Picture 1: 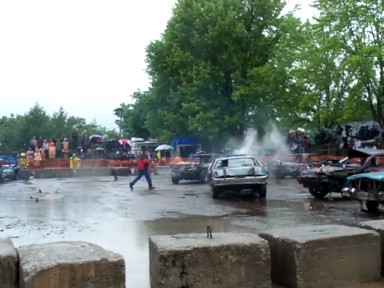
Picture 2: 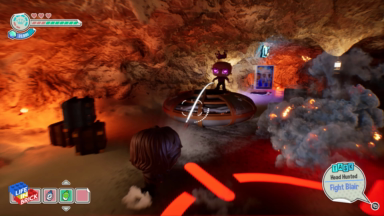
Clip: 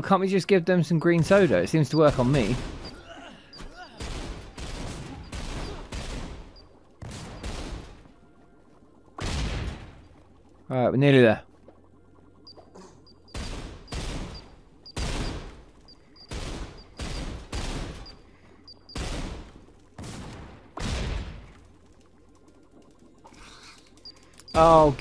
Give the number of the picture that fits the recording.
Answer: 2